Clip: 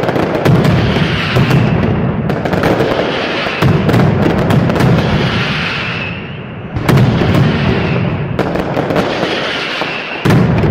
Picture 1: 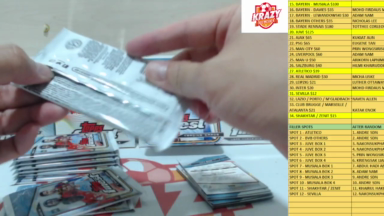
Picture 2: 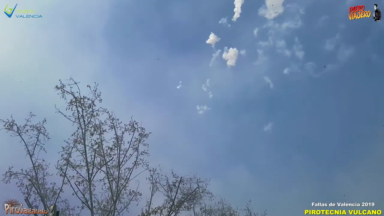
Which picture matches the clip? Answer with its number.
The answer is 2